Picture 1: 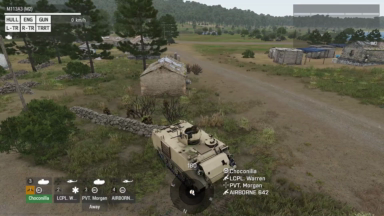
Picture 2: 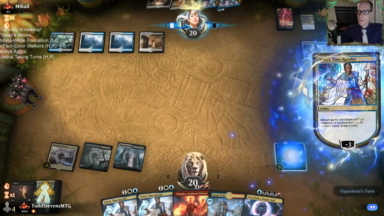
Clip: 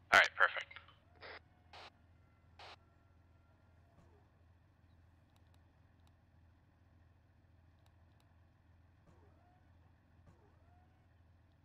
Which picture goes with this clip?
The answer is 1